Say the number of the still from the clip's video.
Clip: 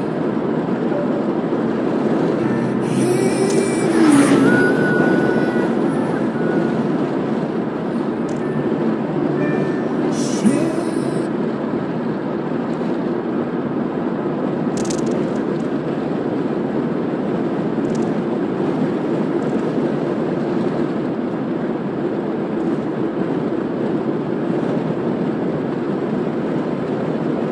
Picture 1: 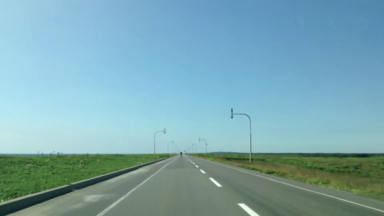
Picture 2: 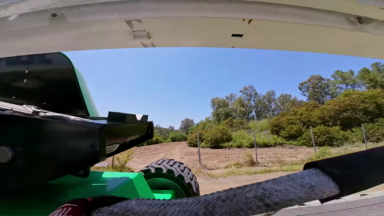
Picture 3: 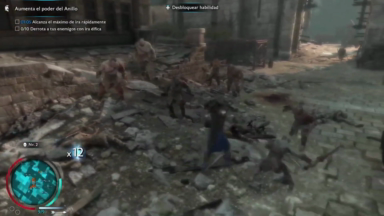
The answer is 1